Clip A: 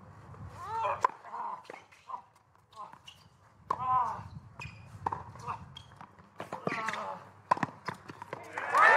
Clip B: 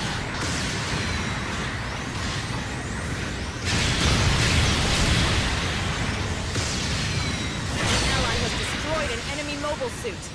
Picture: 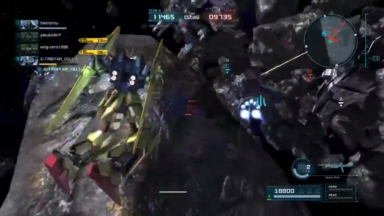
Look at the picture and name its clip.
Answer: B